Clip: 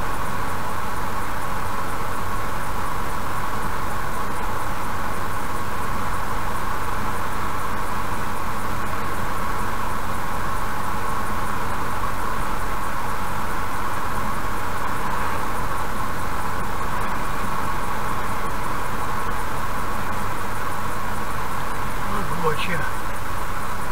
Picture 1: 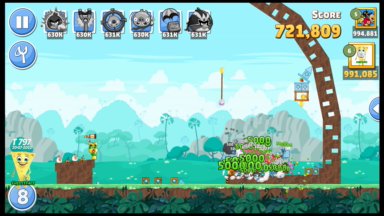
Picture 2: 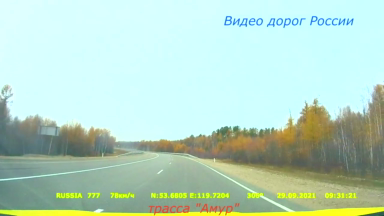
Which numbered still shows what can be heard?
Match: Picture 2